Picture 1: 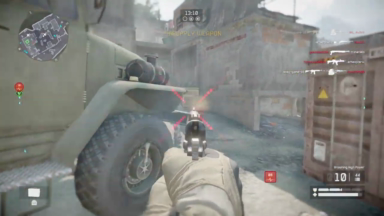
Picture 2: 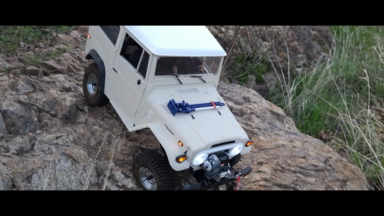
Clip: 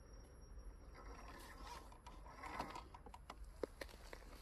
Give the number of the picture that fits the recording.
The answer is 2